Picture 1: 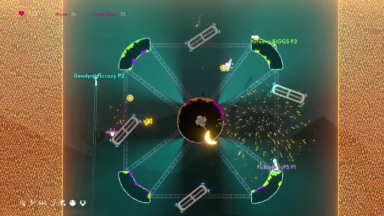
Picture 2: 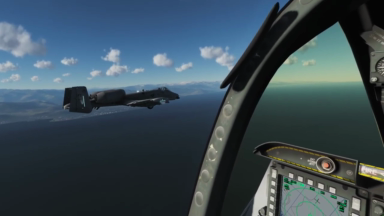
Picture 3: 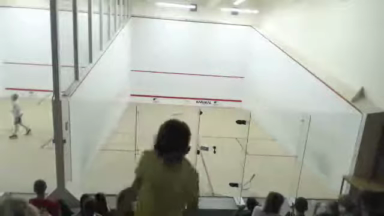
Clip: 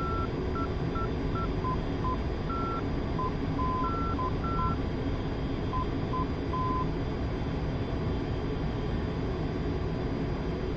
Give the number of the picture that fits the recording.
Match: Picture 2